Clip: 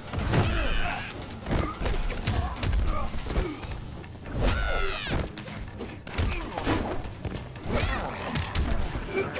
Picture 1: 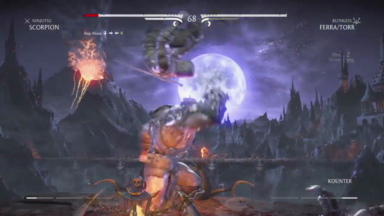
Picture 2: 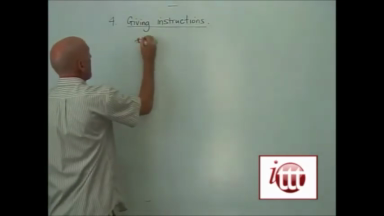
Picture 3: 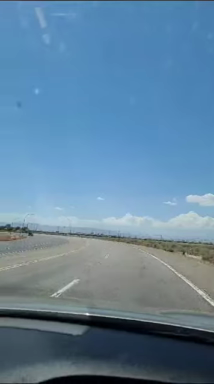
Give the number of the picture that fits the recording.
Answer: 1